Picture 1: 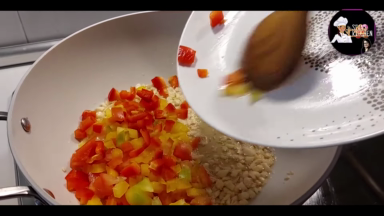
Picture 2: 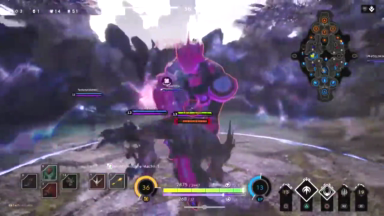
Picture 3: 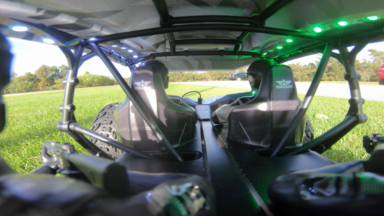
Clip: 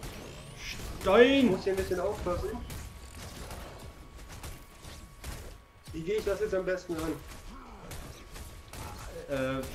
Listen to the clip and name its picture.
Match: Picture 2